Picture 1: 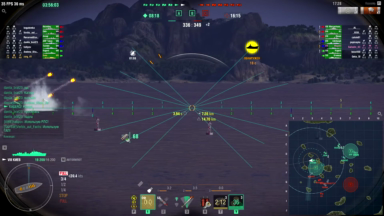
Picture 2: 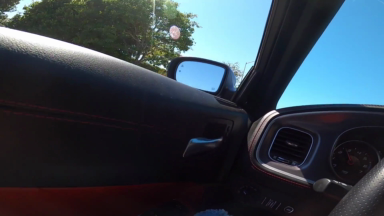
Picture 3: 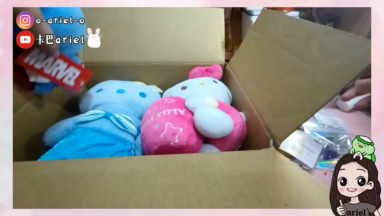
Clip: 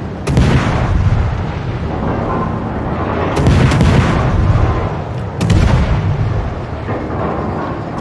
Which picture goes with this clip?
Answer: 1